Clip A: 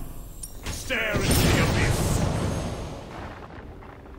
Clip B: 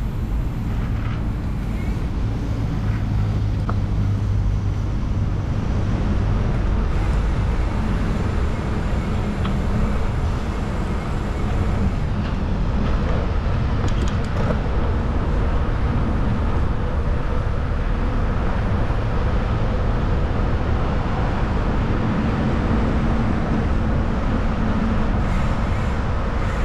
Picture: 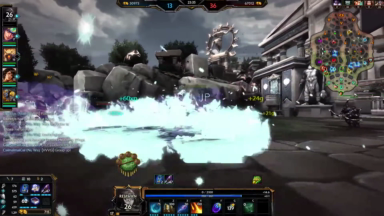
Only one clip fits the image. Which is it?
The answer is A